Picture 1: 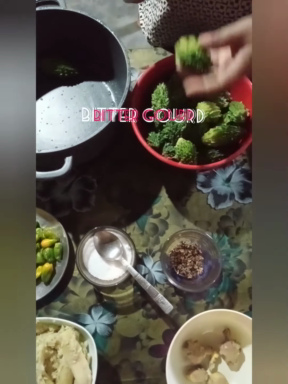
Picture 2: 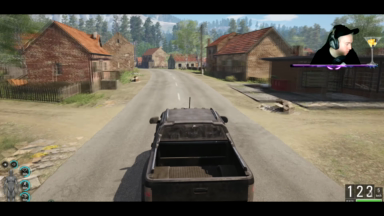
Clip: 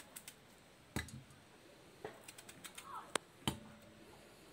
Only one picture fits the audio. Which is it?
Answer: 1